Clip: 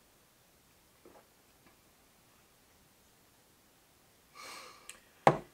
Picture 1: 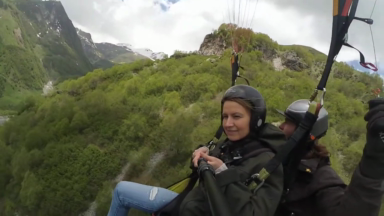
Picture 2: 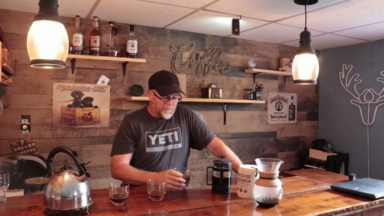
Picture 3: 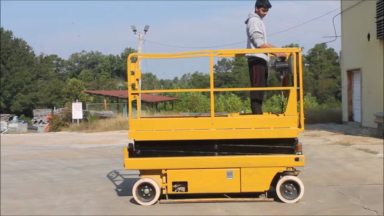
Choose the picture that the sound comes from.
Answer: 2